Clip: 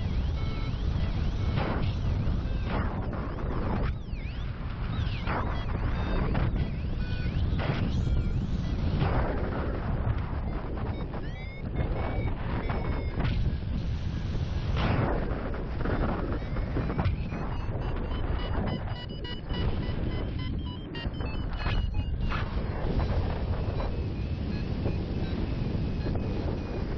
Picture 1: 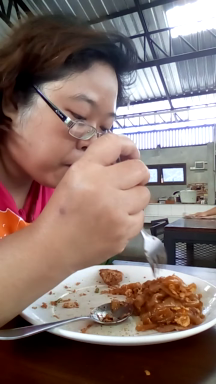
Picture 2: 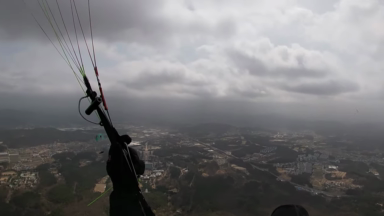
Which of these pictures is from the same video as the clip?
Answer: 2